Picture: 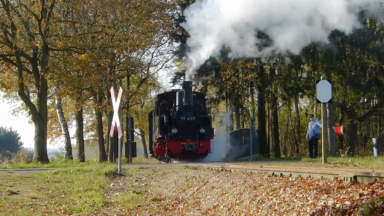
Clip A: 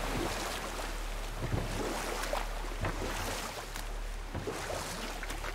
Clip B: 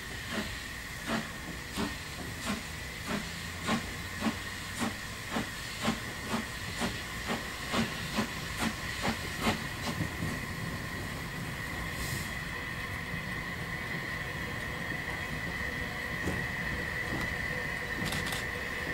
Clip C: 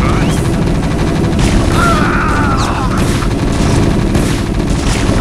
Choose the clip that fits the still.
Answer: B